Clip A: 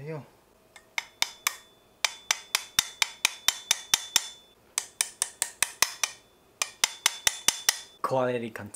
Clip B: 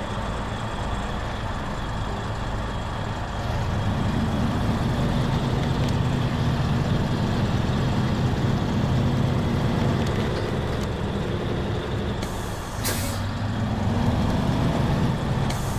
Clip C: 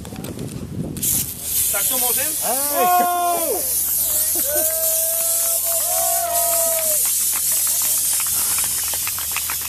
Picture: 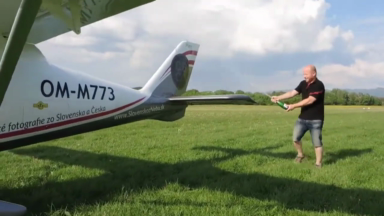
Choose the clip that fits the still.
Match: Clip C